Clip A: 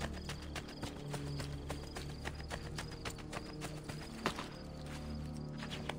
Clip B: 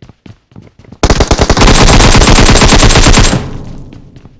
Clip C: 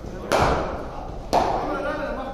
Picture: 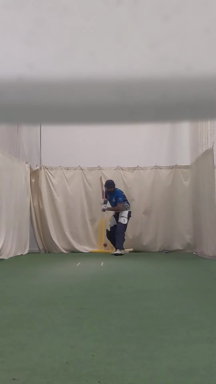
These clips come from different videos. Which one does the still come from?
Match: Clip C